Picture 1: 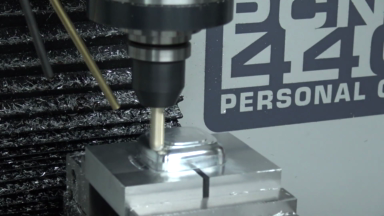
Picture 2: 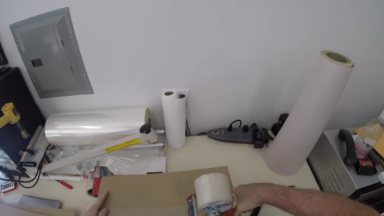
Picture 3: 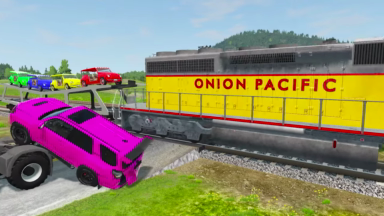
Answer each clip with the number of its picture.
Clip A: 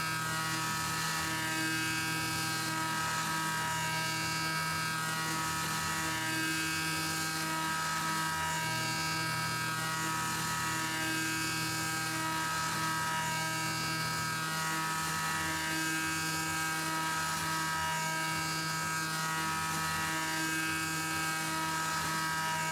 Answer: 1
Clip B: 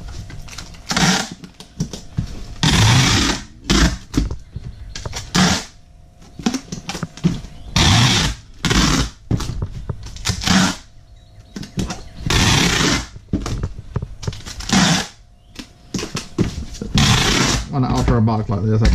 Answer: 2